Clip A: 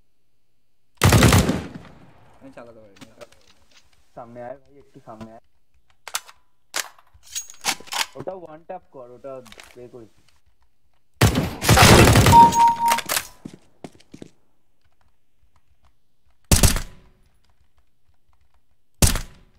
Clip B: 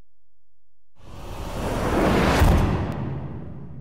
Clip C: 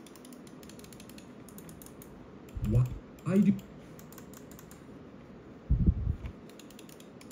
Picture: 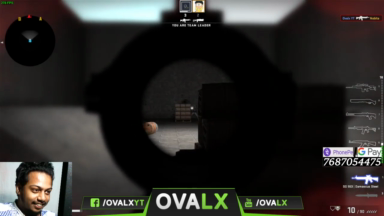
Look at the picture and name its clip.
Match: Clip A